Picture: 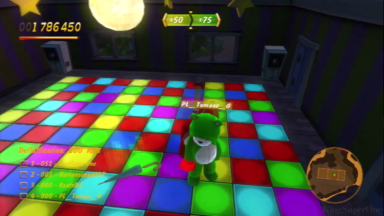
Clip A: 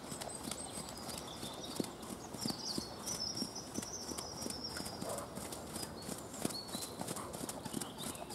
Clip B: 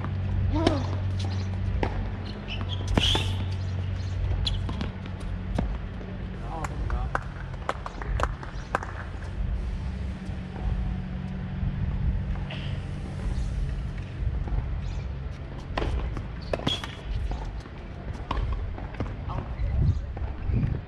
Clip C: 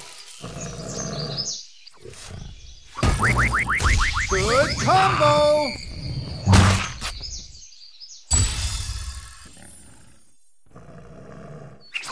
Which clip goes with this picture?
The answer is C